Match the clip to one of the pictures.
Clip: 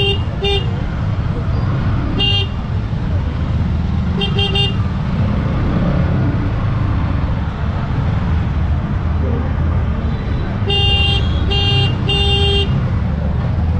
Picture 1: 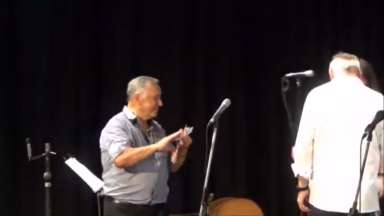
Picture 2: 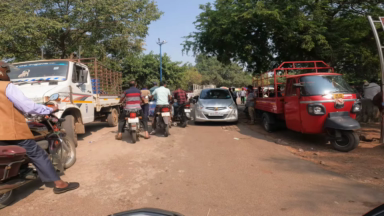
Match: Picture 2